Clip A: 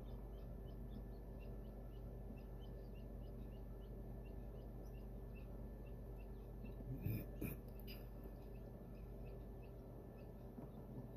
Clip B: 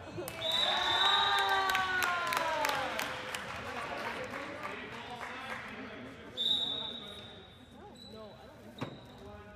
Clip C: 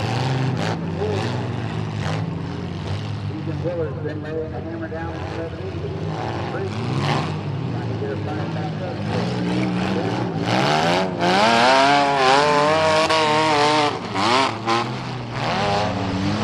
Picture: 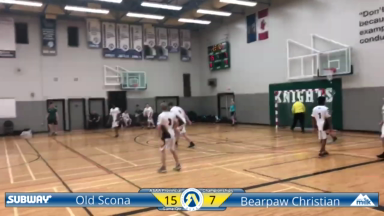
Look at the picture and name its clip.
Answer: B